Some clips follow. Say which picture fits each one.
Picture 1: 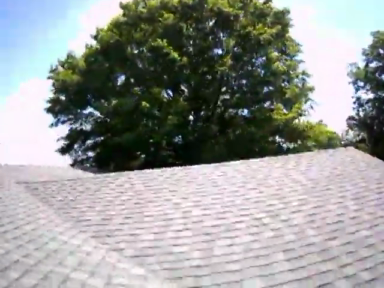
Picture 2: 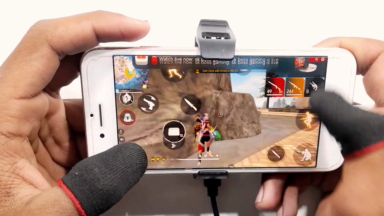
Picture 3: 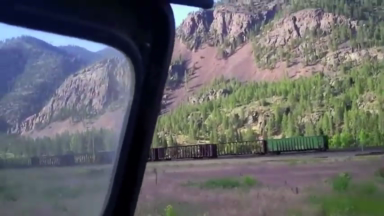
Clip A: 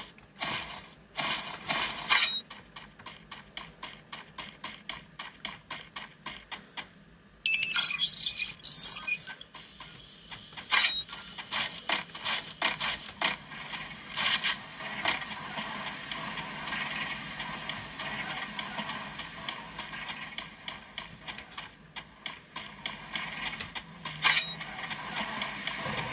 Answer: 2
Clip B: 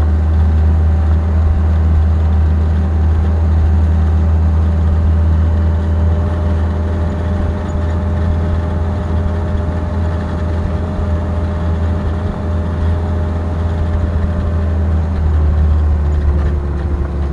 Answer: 3